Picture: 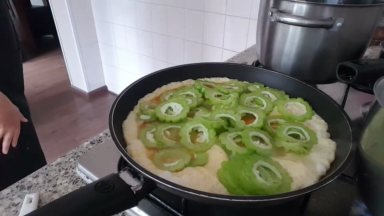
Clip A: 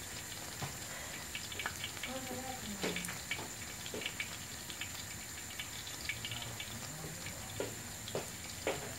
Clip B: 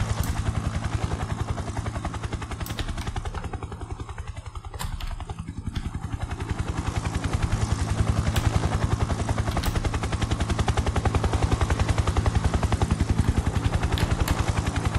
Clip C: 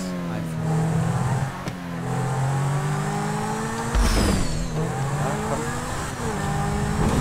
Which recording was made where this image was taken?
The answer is A